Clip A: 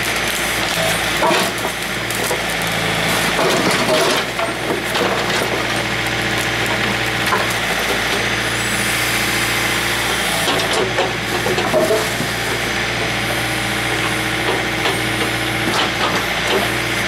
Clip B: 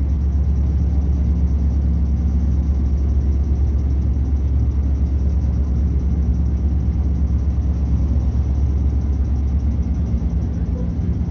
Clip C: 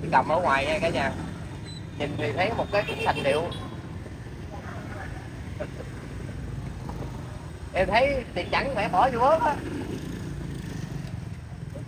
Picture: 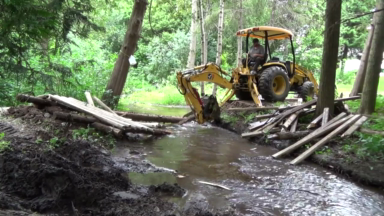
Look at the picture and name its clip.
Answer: A